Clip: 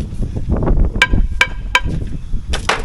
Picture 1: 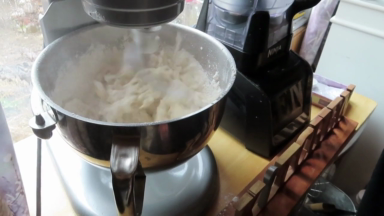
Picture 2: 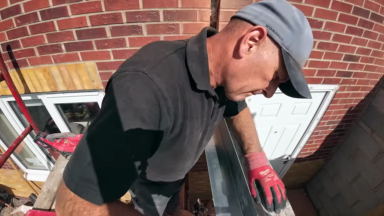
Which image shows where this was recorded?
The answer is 2